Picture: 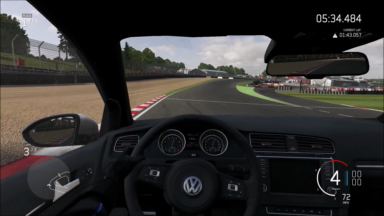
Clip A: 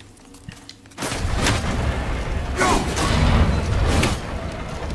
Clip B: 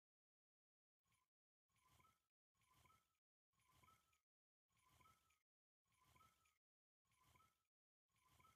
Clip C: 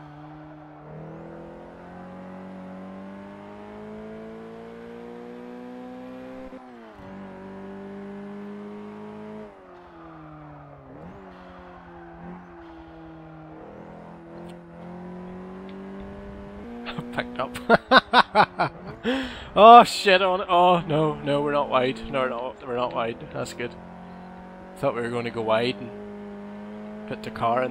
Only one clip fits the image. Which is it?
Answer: C